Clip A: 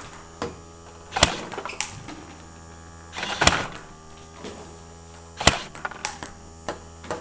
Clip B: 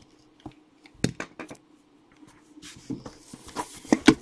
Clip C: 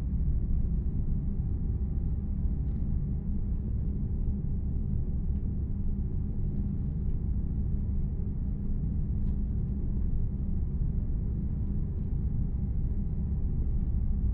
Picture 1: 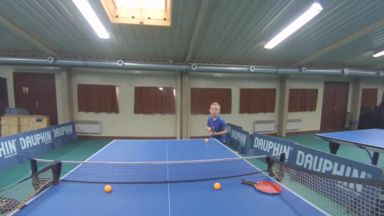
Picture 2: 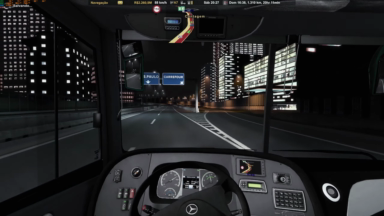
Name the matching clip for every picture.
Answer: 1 A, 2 C